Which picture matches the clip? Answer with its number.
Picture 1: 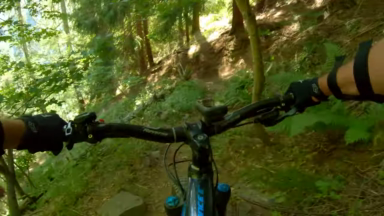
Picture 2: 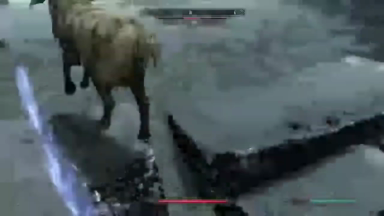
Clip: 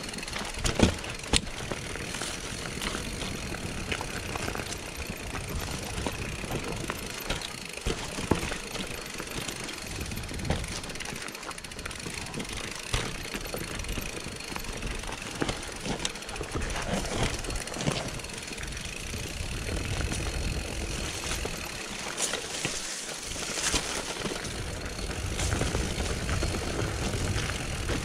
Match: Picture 1